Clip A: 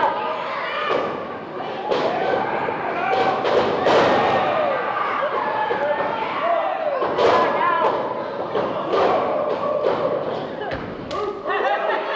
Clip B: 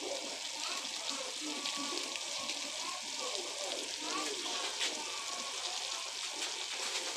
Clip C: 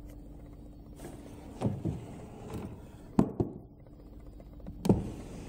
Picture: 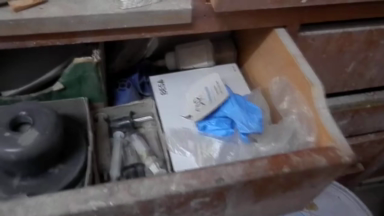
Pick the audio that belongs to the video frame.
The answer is C